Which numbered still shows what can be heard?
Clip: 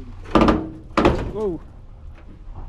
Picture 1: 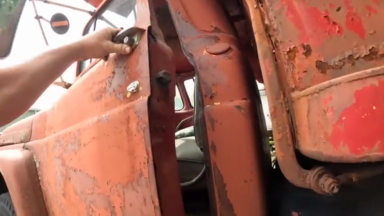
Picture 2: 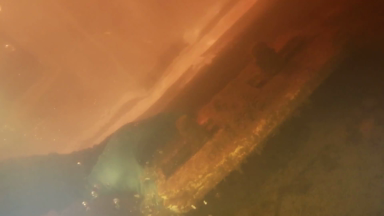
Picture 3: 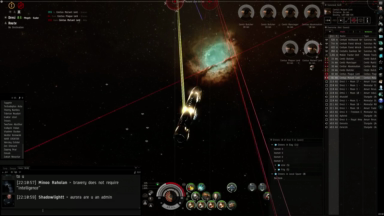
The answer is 1